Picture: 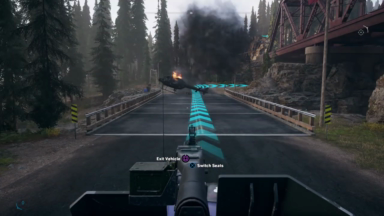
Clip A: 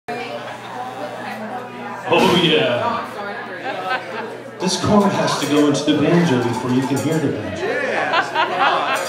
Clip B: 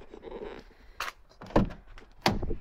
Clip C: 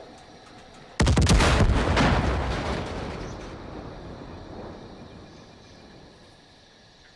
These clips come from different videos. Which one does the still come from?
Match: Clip C